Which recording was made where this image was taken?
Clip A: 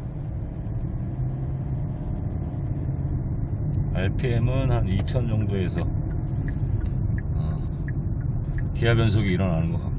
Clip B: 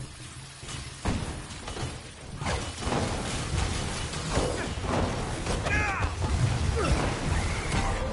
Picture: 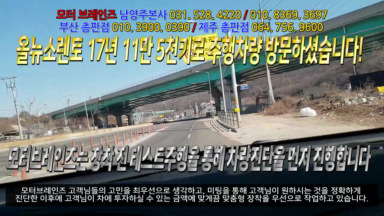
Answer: A